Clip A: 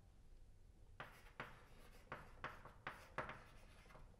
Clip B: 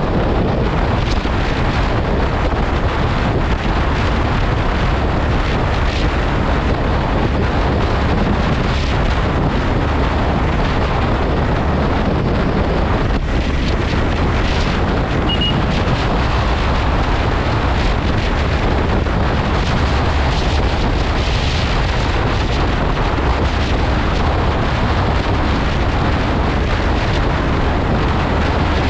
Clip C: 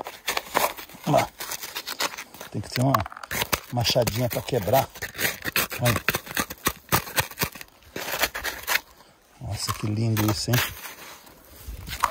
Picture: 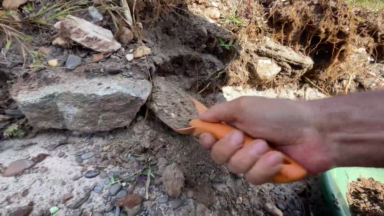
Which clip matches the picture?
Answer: C